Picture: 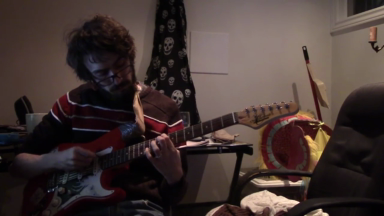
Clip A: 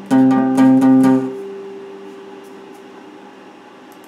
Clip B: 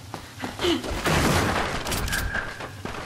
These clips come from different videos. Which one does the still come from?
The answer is A